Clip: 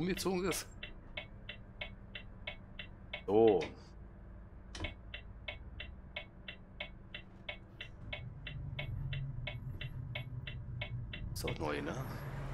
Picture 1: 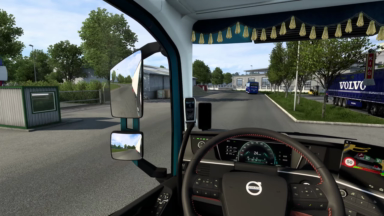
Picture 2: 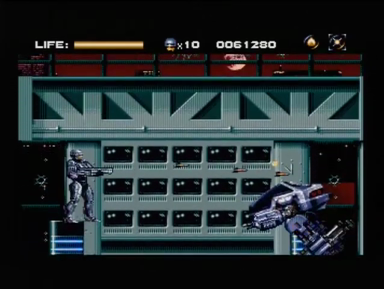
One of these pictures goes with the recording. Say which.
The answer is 1